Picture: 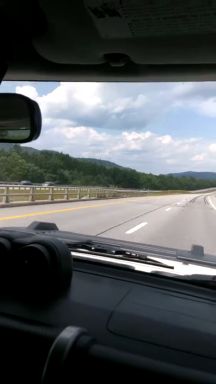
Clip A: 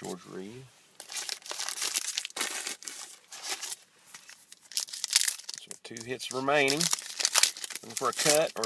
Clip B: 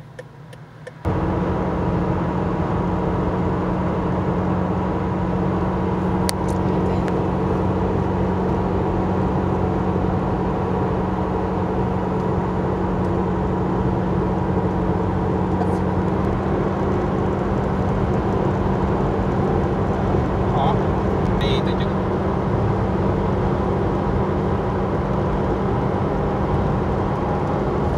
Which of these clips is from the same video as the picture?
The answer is B